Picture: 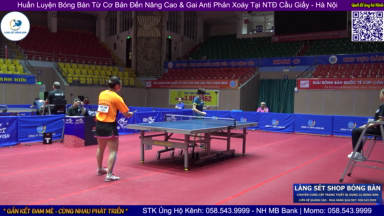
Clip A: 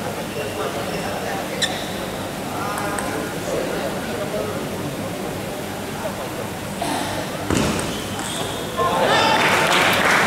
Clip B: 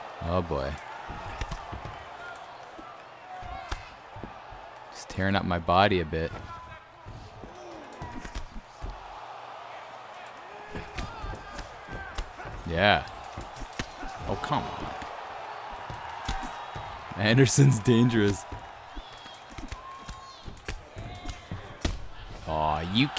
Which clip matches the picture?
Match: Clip A